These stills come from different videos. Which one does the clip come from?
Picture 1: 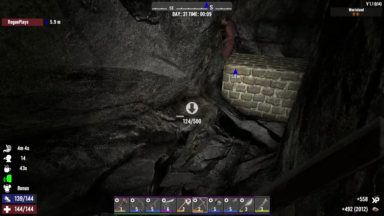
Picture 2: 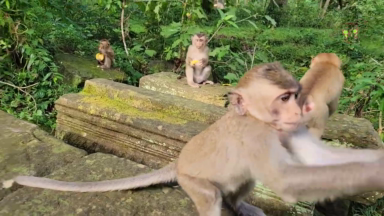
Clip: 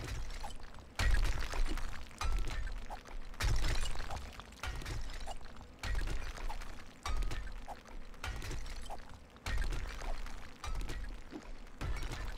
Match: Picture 1